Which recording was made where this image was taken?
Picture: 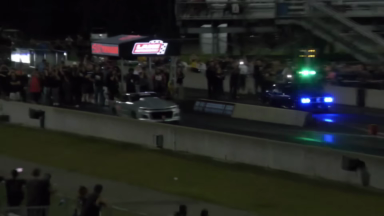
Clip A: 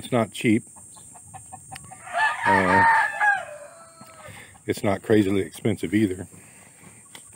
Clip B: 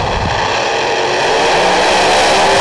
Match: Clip B